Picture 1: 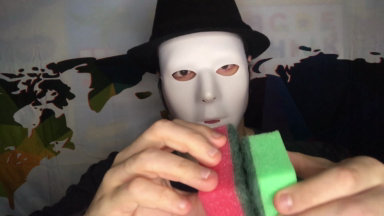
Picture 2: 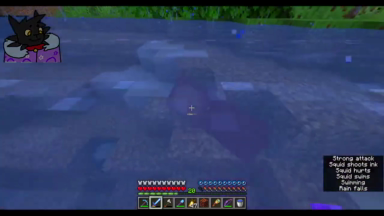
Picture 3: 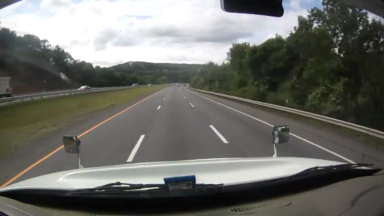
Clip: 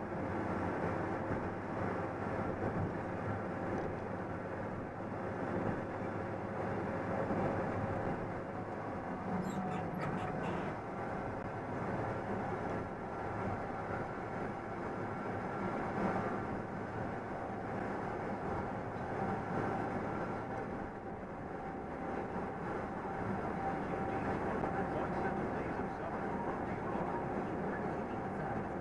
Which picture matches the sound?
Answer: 3